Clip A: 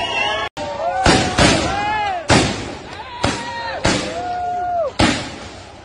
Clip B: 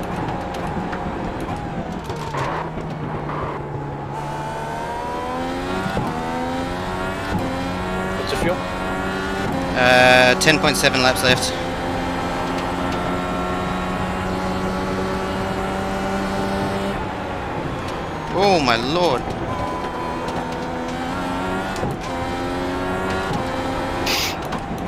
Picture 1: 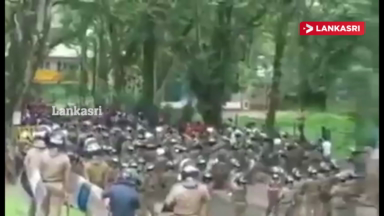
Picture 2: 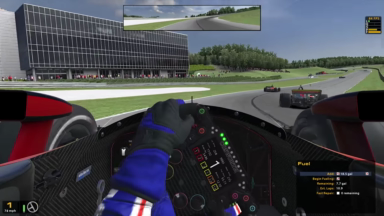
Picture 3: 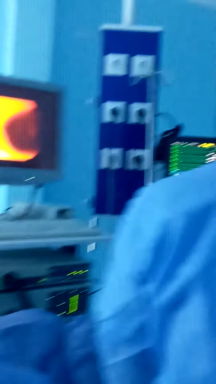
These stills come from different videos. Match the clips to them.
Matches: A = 1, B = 2